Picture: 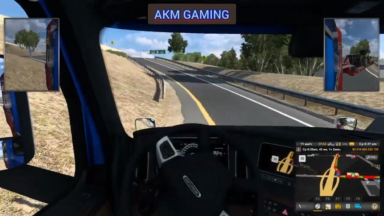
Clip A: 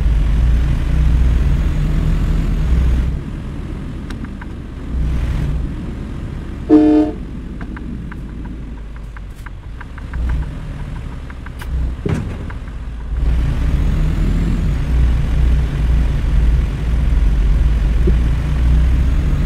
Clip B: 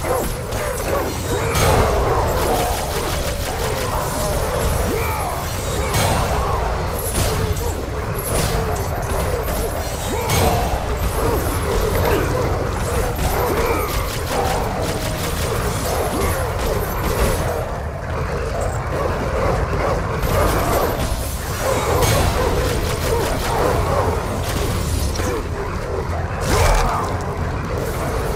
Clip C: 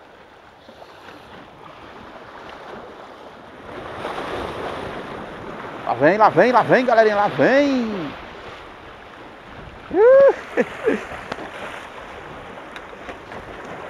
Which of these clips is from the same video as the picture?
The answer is A